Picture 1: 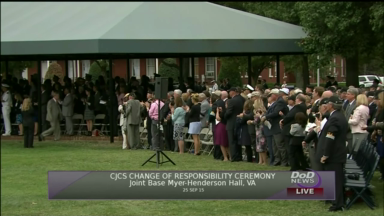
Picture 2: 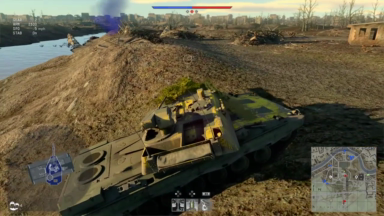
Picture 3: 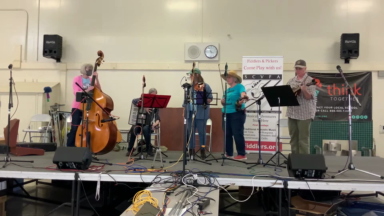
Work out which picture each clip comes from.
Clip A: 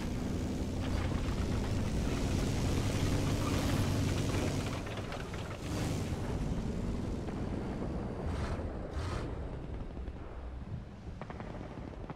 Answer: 2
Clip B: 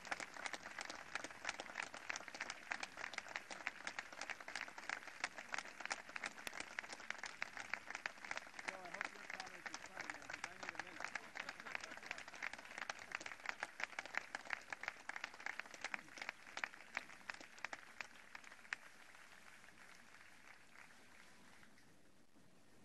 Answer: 1